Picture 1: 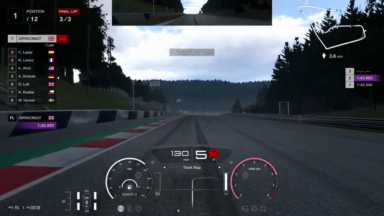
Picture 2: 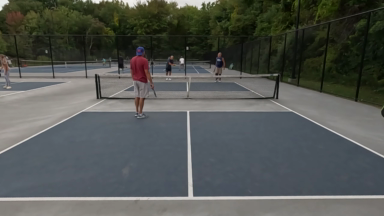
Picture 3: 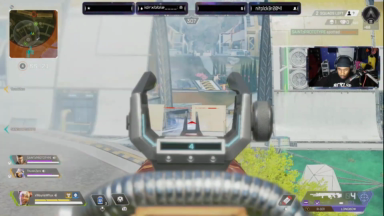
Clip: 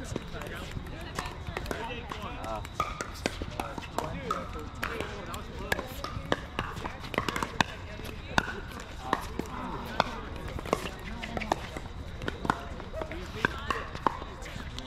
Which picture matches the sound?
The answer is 2